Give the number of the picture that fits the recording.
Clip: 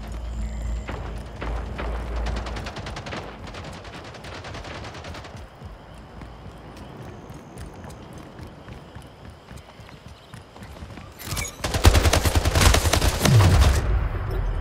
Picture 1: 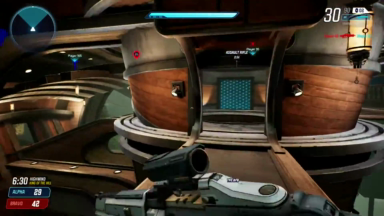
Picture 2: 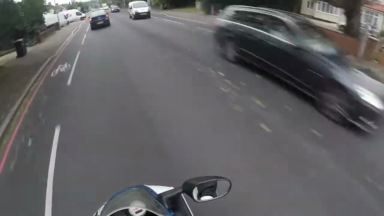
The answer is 1